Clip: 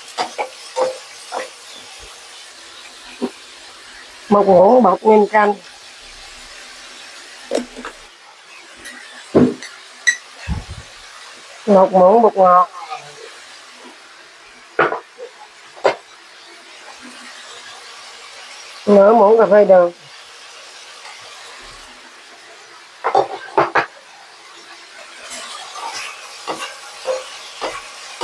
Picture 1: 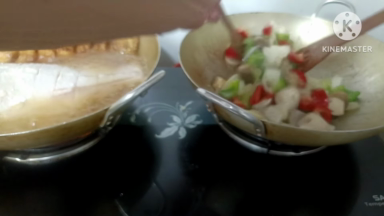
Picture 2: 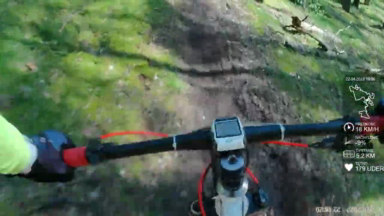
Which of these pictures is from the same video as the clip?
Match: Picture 1